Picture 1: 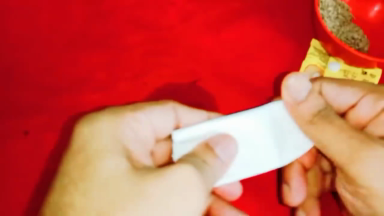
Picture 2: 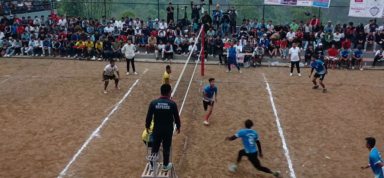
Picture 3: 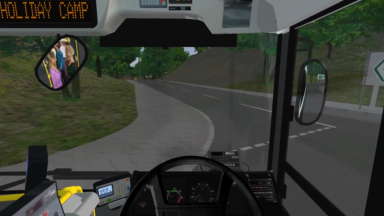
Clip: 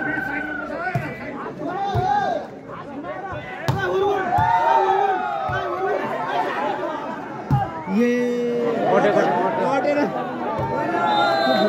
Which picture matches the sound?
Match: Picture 2